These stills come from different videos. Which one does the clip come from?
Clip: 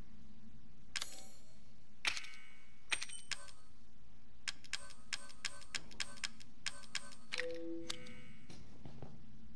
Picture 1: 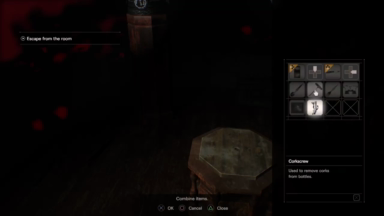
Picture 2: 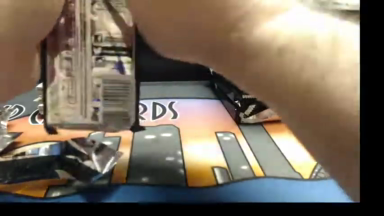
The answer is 1